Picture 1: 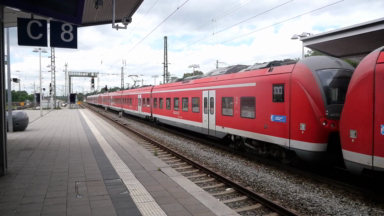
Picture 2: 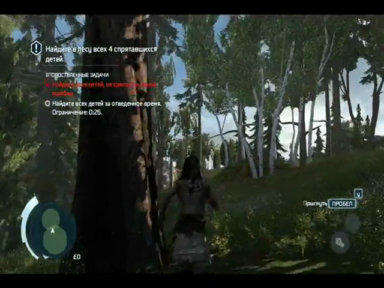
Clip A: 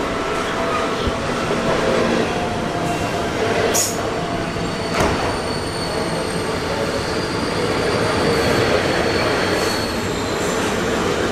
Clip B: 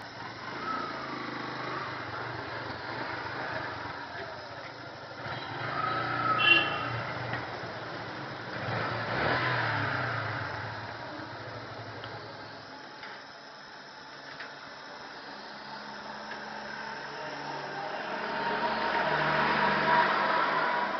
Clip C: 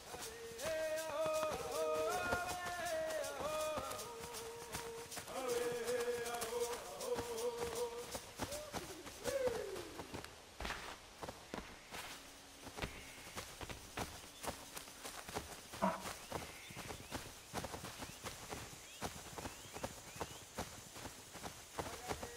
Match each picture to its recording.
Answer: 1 A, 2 C